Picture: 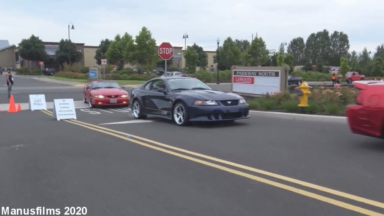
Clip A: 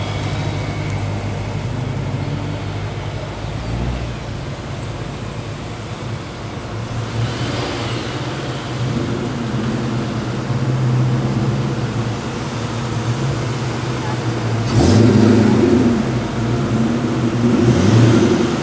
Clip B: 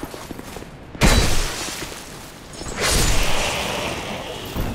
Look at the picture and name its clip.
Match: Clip A